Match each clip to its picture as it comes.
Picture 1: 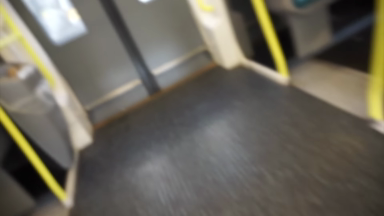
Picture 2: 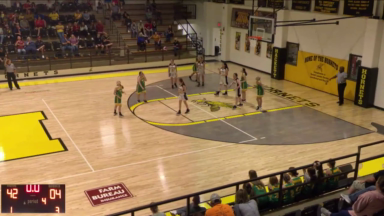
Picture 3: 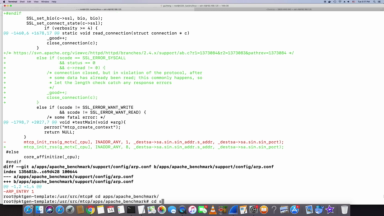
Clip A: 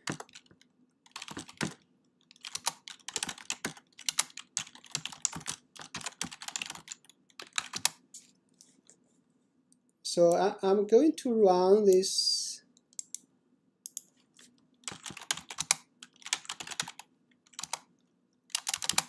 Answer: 3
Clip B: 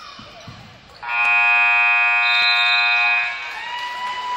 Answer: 2